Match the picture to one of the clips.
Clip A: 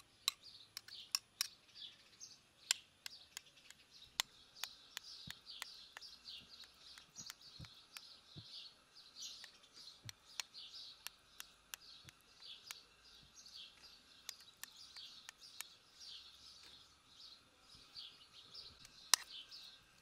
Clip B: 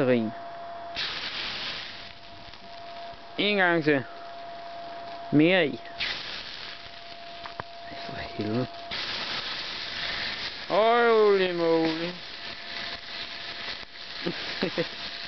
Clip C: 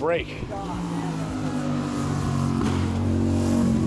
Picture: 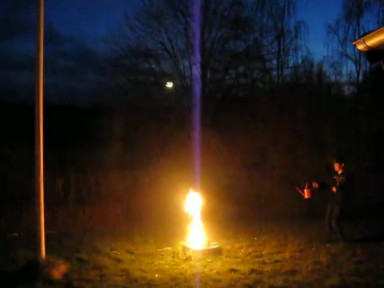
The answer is B